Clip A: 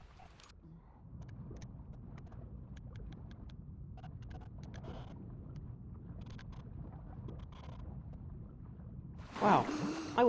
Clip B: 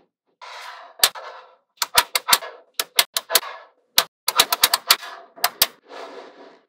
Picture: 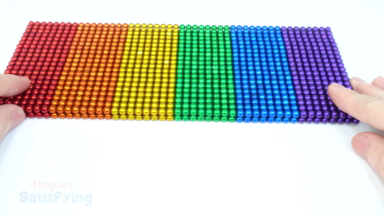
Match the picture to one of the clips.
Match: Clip B